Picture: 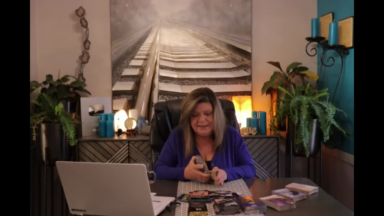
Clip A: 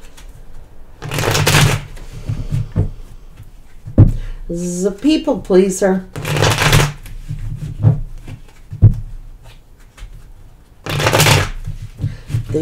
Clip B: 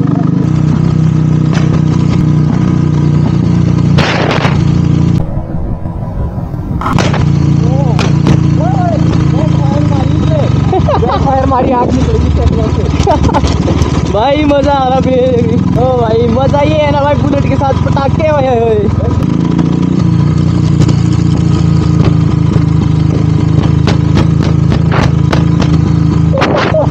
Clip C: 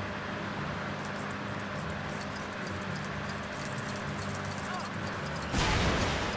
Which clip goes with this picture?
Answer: A